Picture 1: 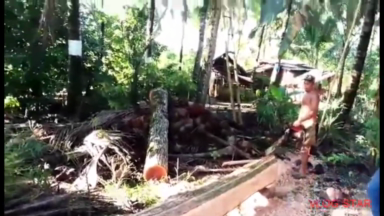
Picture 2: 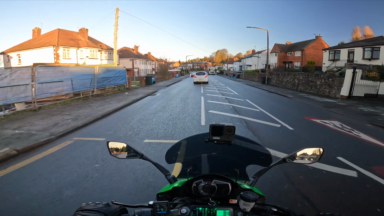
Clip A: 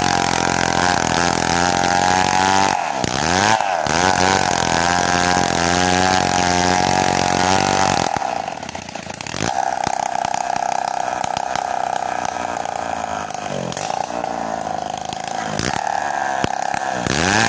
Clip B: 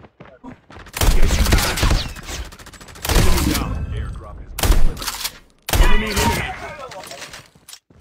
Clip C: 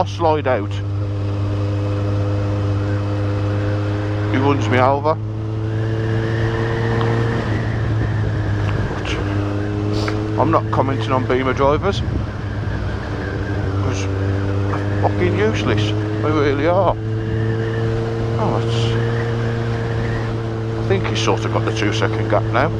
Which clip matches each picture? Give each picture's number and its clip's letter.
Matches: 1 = A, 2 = C